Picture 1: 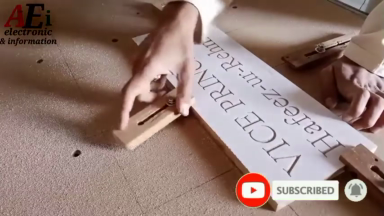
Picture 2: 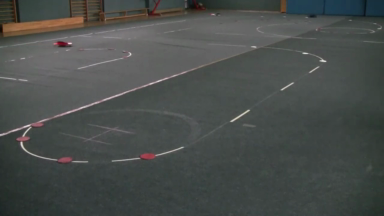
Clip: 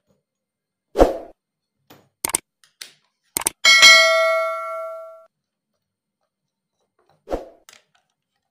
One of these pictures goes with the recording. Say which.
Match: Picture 1